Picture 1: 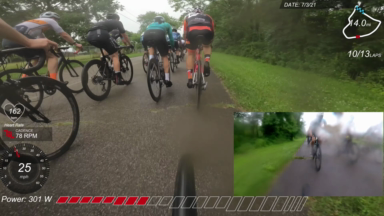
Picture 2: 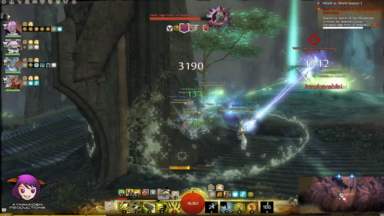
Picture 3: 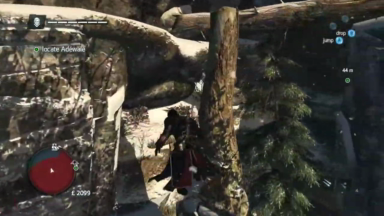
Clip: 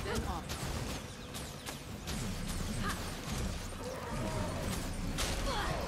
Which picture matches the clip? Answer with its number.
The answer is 2